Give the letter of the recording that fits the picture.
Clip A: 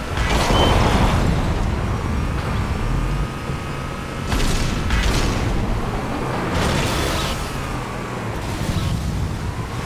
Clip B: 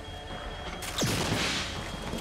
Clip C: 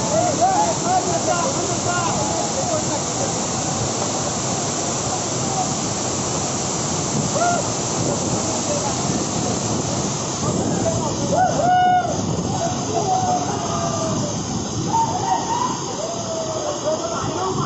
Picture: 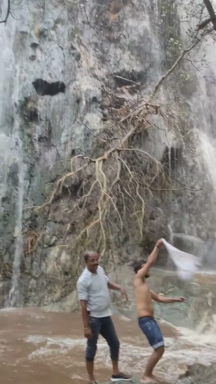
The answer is C